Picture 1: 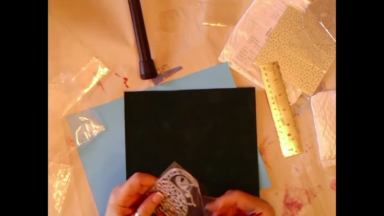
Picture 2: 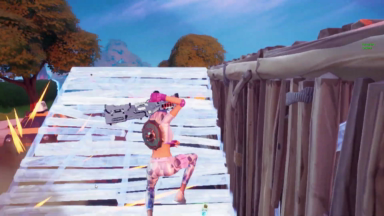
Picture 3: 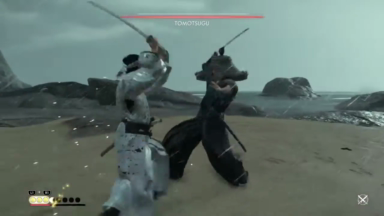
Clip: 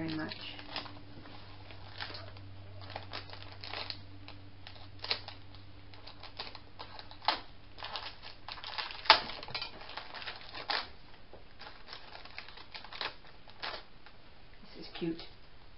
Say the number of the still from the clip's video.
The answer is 1